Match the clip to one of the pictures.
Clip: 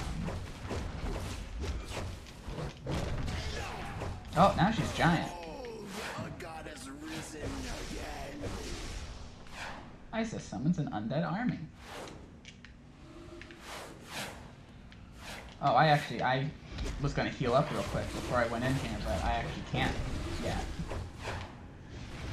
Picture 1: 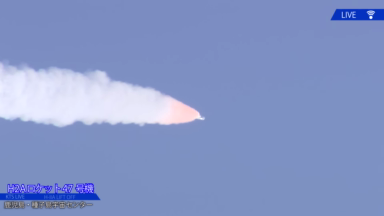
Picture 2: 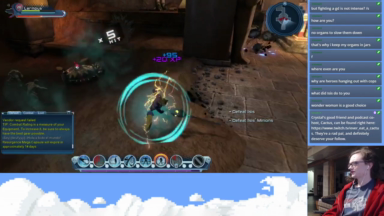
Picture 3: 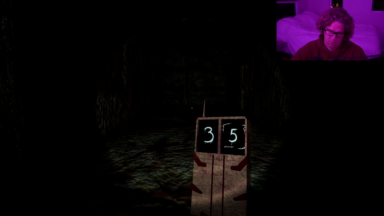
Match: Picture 2